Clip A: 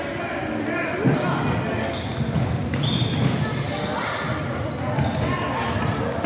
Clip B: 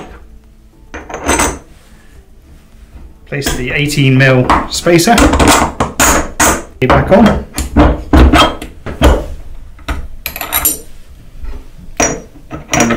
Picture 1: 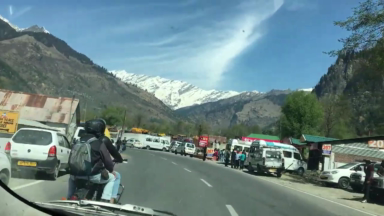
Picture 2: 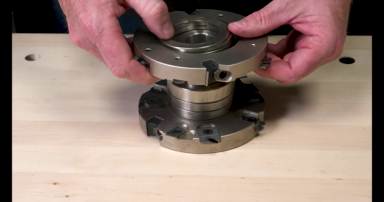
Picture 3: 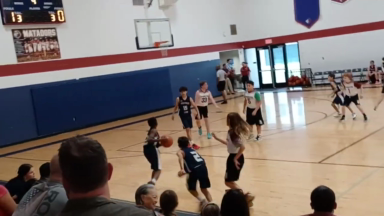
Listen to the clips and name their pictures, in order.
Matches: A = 3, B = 2